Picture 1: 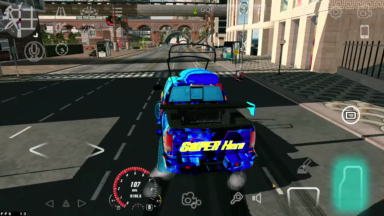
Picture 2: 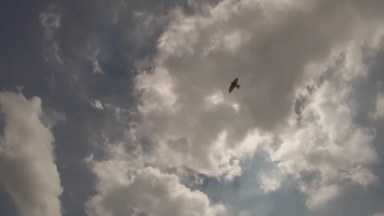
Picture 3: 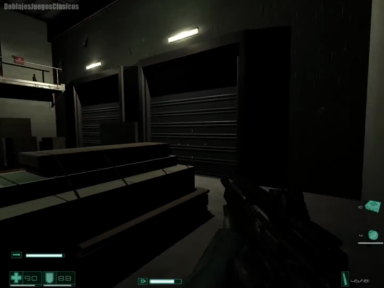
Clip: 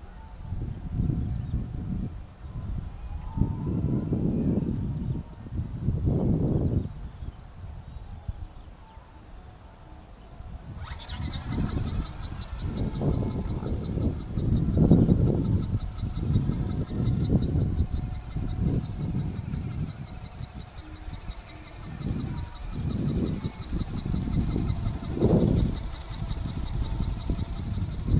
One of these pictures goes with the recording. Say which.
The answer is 2